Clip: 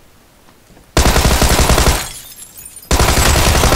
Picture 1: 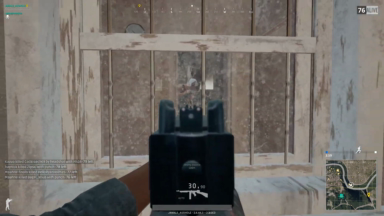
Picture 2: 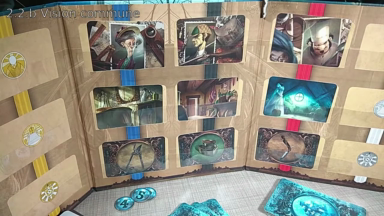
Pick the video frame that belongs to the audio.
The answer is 1